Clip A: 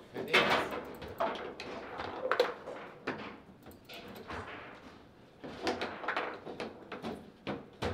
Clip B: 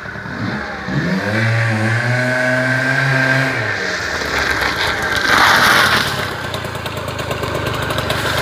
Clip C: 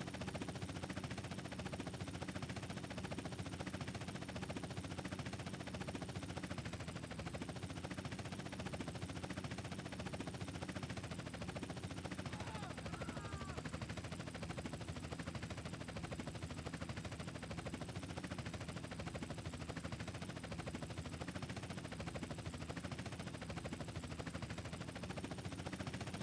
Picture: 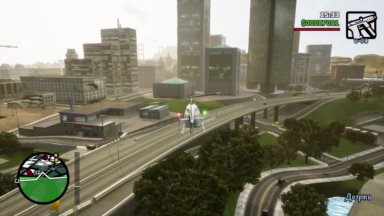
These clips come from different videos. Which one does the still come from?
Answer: C